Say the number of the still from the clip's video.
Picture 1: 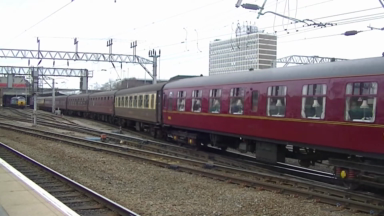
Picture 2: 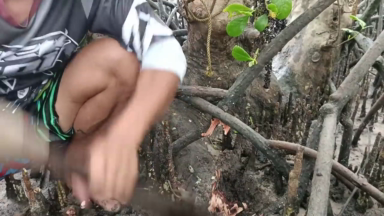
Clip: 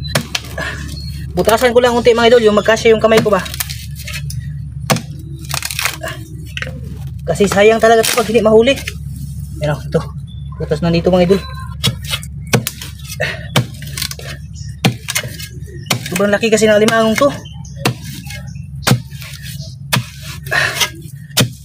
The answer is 2